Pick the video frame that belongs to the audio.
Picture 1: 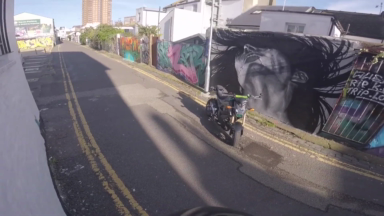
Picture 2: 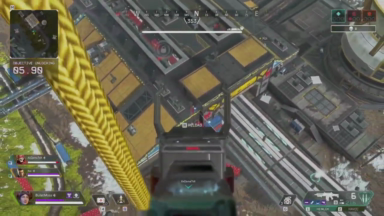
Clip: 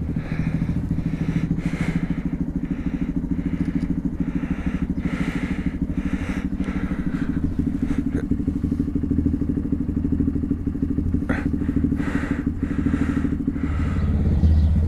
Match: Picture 1